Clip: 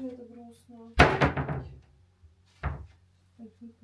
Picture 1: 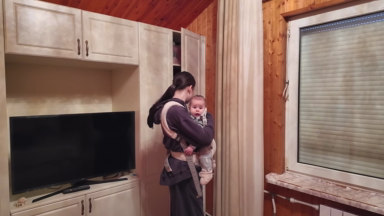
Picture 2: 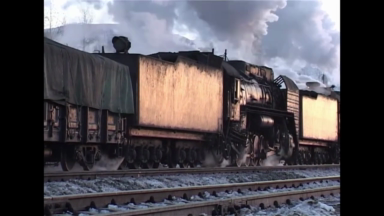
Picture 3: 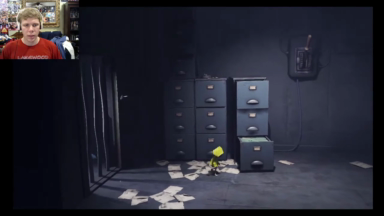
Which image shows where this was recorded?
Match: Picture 1